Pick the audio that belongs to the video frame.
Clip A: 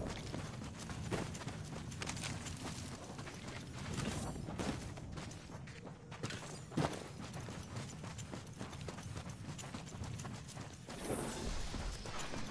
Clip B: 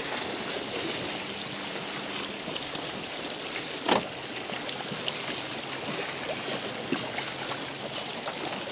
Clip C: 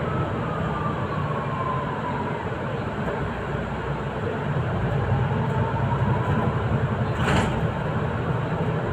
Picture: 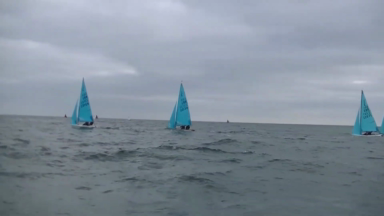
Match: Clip B